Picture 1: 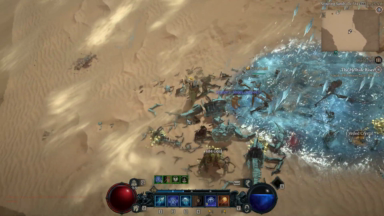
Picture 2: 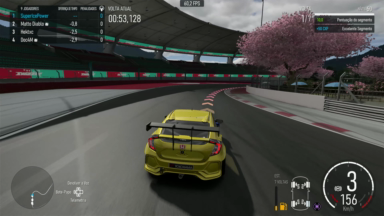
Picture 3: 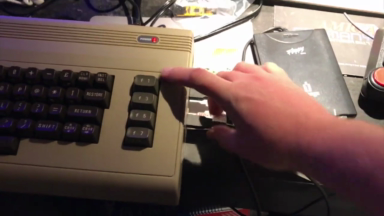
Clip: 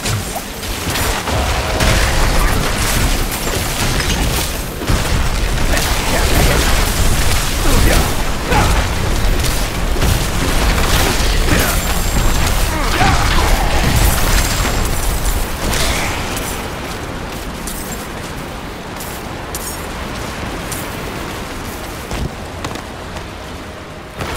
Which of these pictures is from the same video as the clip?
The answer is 1